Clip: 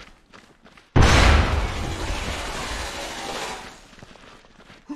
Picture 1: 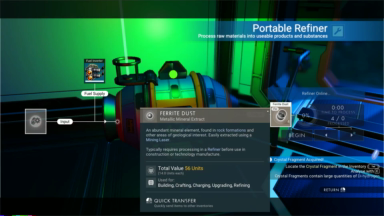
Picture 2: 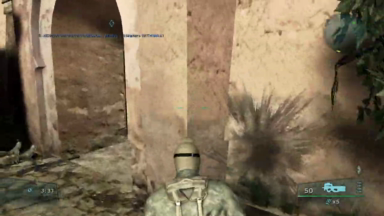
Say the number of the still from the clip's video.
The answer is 2